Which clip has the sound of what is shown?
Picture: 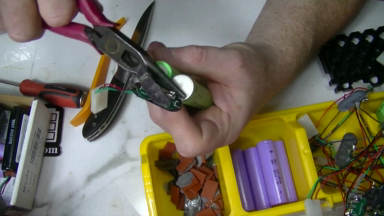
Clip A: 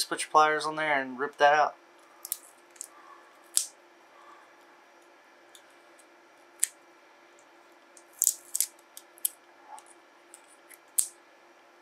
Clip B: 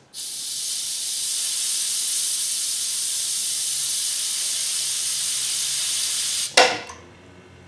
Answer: A